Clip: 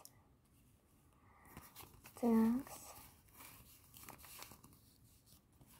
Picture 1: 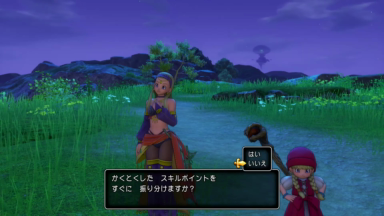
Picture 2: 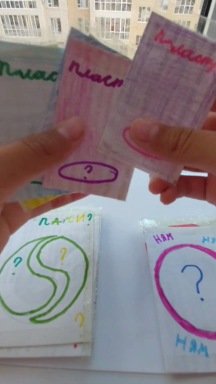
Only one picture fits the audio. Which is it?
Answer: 2